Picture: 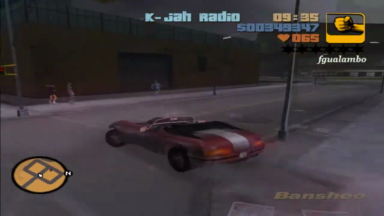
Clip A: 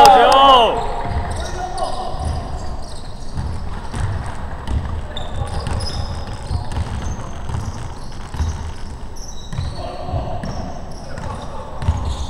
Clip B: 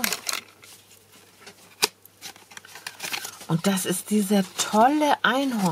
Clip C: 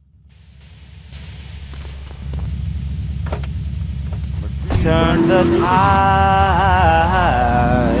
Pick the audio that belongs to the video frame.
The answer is C